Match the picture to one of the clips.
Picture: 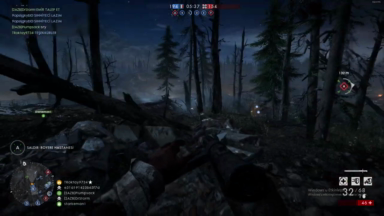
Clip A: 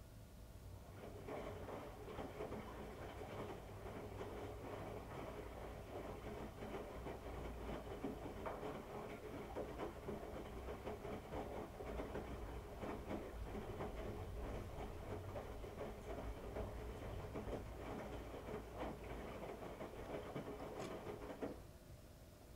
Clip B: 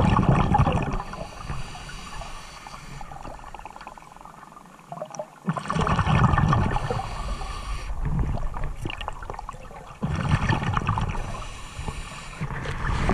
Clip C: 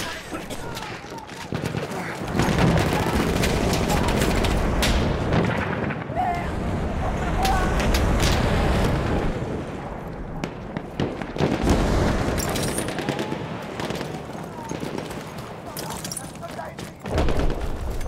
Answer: C